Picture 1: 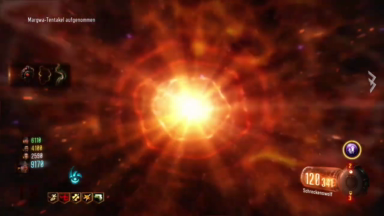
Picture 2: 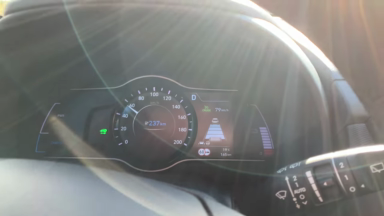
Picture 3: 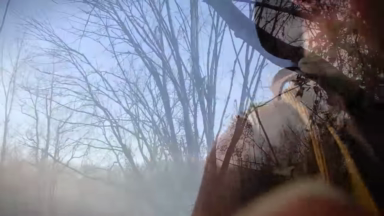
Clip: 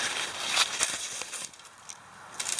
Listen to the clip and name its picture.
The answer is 3